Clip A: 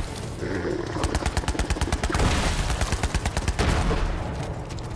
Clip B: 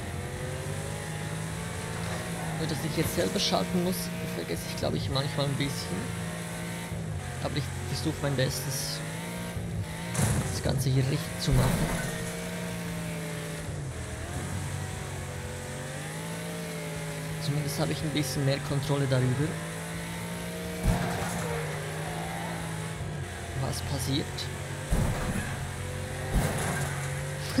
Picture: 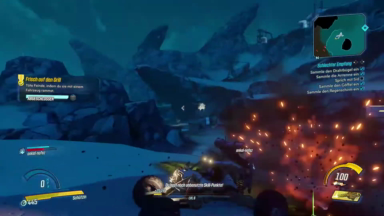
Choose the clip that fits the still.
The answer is A